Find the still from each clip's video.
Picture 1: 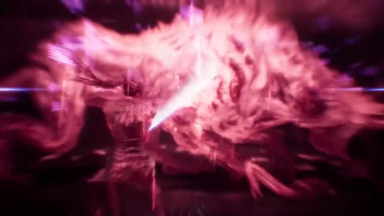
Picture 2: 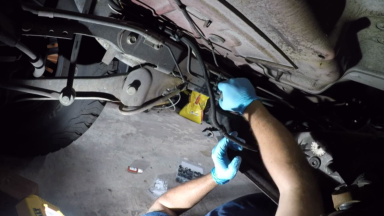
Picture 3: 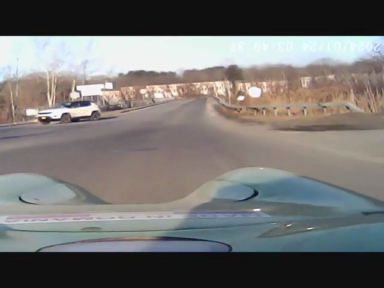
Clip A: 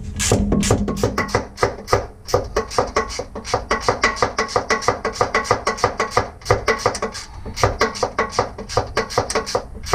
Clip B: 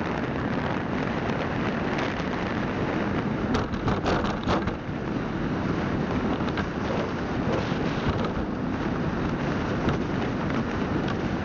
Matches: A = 2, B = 3